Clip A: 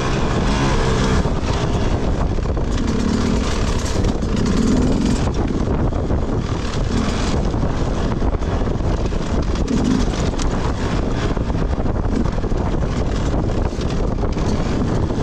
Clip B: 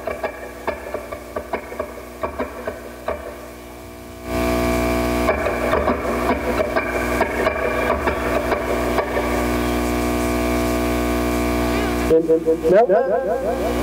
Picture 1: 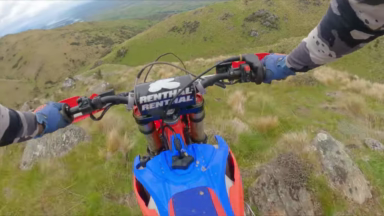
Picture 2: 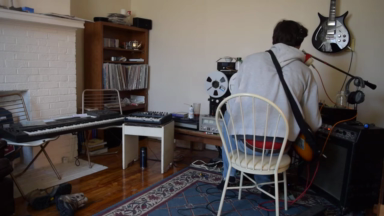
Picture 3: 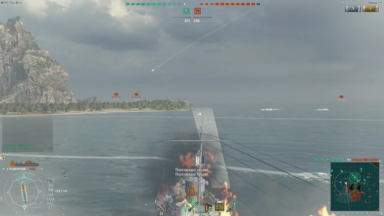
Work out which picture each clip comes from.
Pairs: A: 1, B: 2